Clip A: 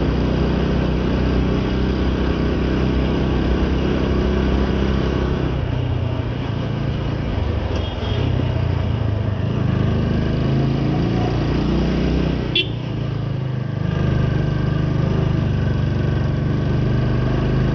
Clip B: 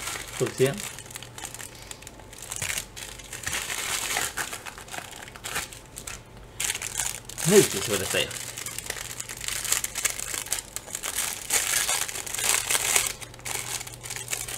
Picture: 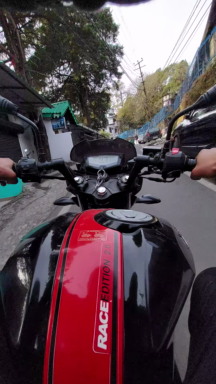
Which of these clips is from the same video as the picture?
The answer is A